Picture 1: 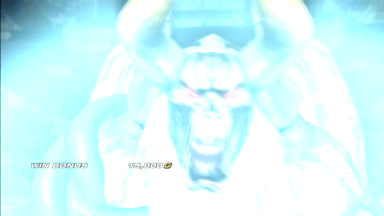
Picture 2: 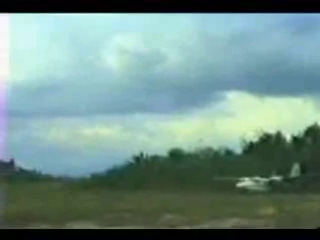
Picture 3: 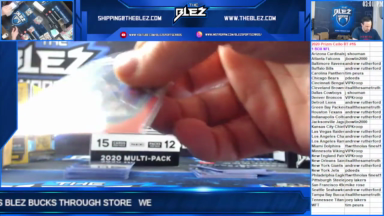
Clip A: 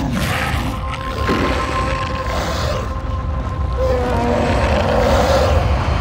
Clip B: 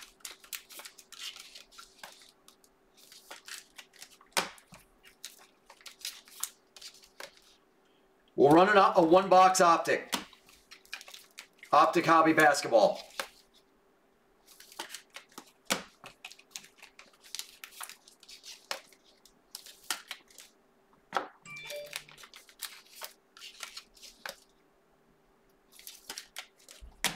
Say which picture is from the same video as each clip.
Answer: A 1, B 3